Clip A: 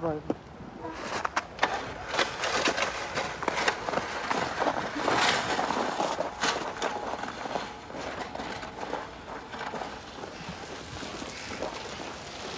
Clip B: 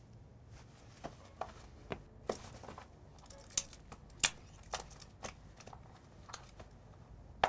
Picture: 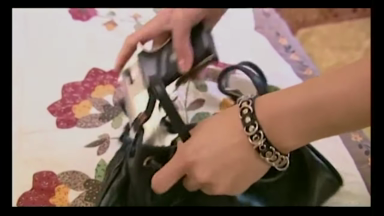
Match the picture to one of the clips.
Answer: B